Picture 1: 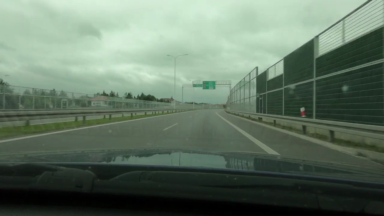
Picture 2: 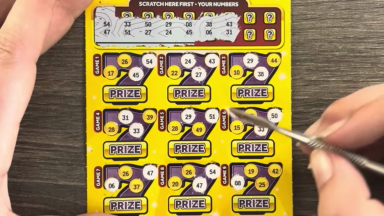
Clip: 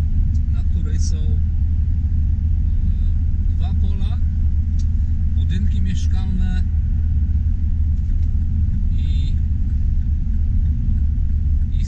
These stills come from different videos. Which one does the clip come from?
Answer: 1